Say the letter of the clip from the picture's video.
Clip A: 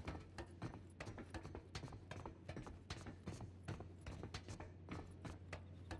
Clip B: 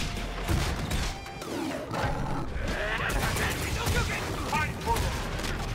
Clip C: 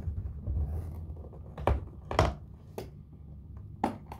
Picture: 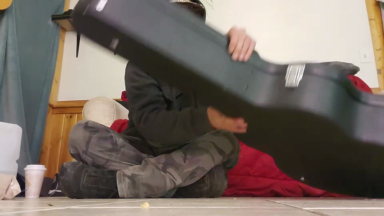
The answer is C